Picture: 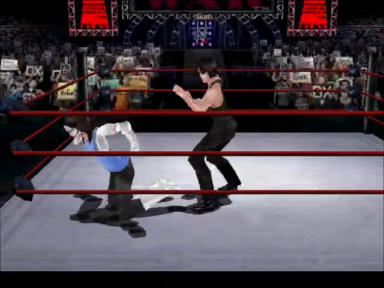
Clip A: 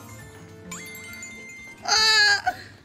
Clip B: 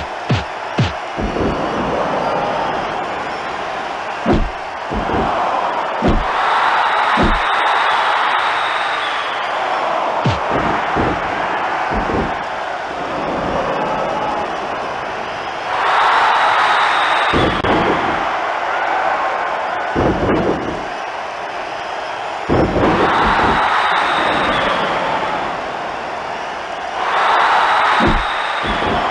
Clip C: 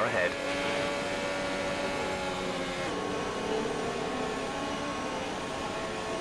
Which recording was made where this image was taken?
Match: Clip B